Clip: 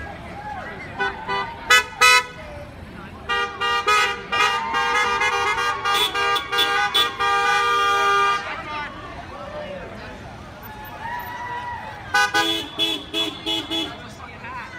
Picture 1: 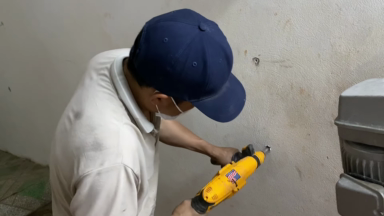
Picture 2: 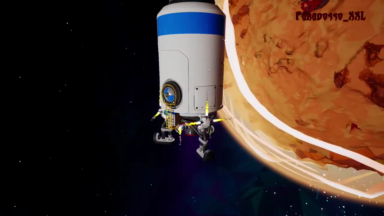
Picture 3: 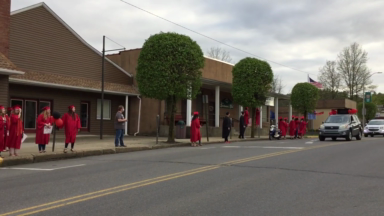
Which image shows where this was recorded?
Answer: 3